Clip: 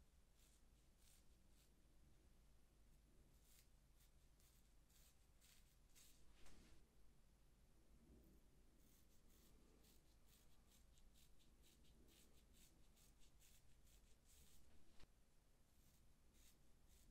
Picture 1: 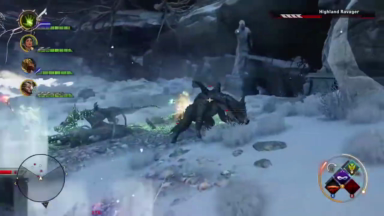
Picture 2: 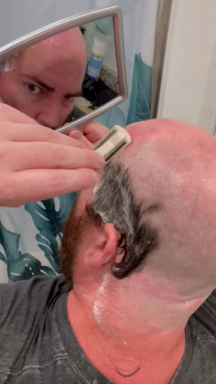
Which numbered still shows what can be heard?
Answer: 2